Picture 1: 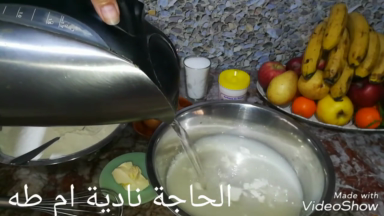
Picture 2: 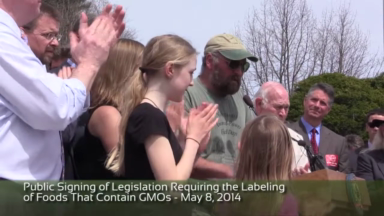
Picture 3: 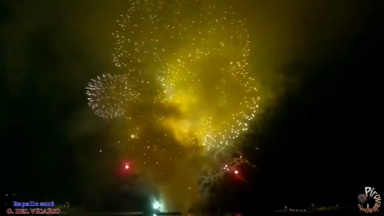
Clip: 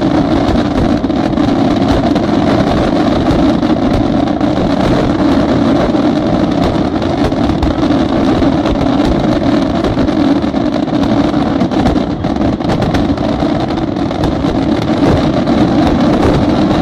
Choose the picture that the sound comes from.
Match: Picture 3